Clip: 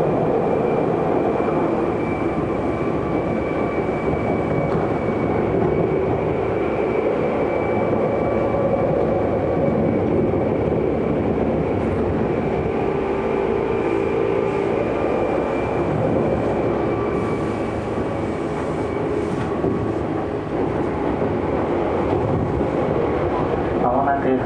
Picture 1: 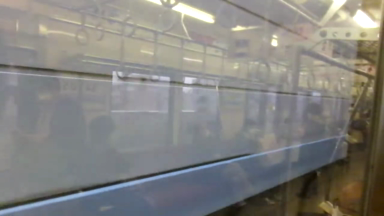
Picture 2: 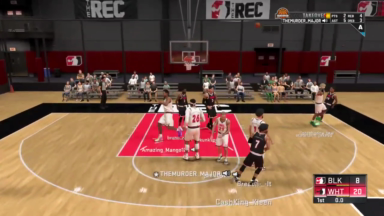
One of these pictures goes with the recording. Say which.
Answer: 1